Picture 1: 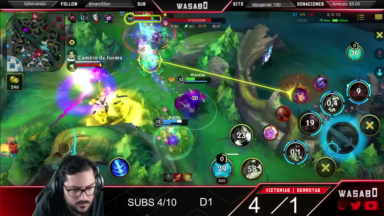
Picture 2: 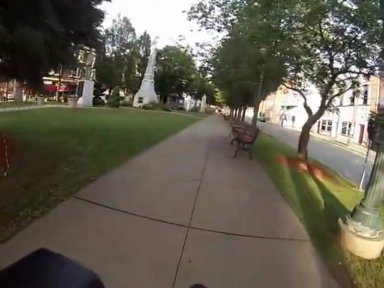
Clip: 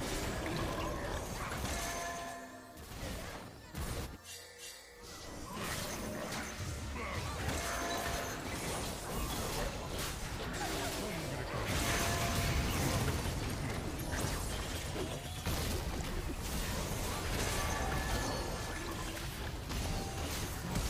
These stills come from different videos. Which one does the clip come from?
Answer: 1